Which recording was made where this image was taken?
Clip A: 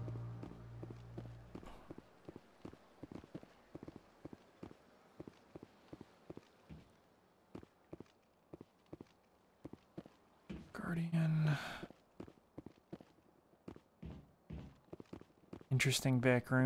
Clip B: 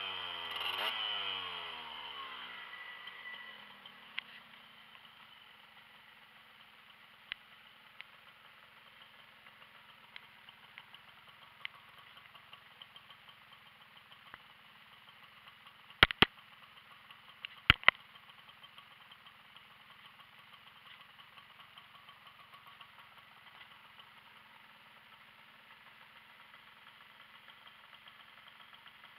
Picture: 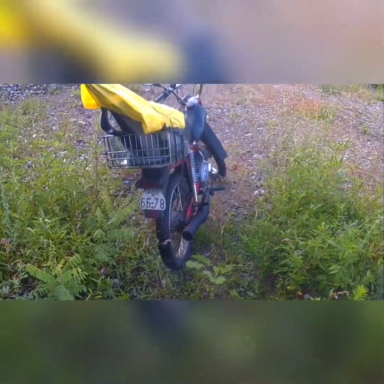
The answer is B